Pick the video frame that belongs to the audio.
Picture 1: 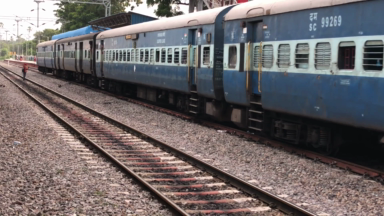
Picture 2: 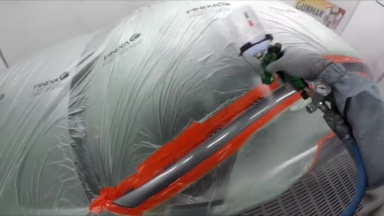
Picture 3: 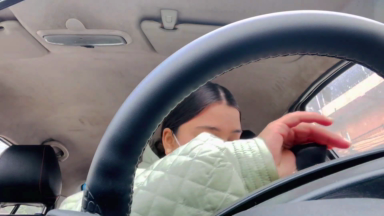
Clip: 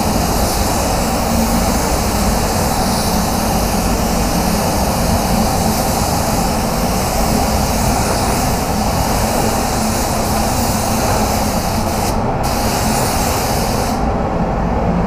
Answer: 2